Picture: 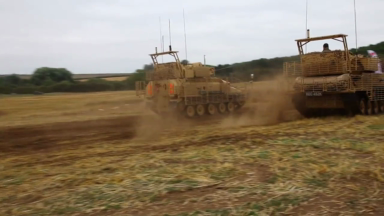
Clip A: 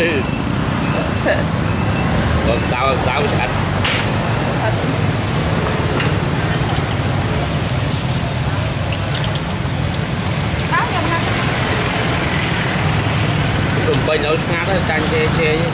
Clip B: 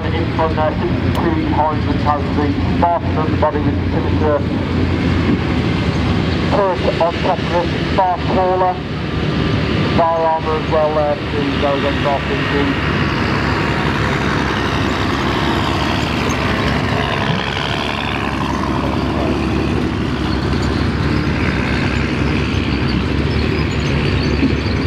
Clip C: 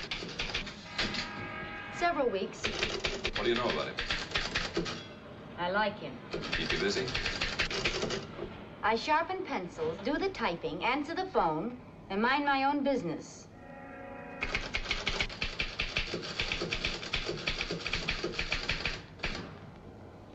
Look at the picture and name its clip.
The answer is B